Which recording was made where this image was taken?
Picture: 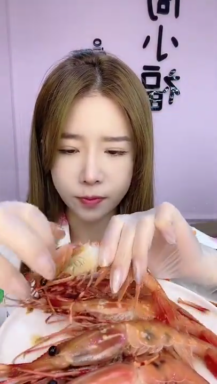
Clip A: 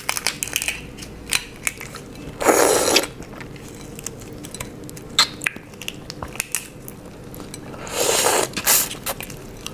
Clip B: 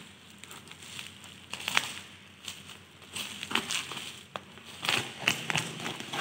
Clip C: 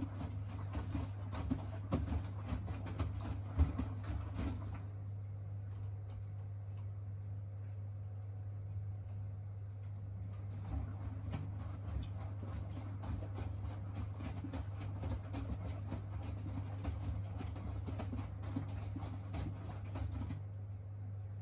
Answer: A